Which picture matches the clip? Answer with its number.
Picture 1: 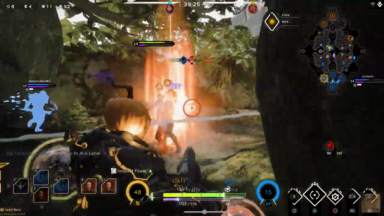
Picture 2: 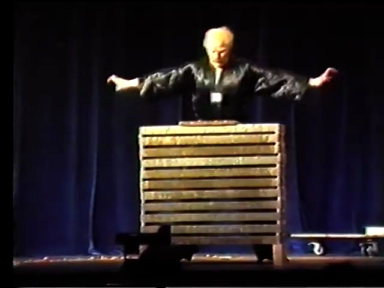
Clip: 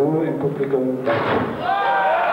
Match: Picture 2